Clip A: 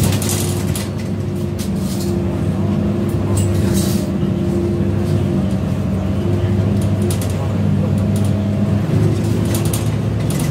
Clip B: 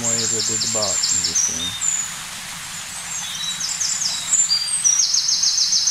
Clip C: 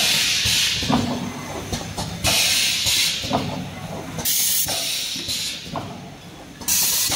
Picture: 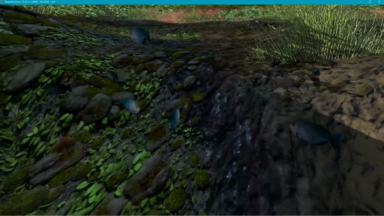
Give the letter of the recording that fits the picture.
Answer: B